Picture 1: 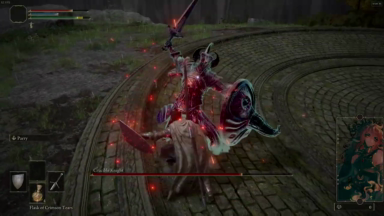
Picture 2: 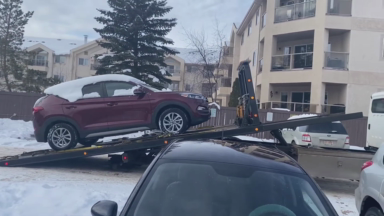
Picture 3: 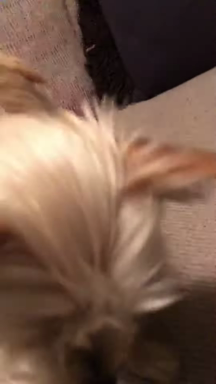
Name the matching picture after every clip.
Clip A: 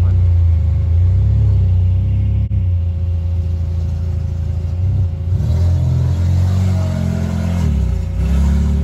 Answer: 2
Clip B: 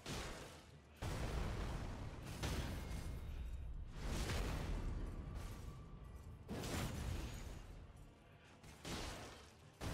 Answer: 1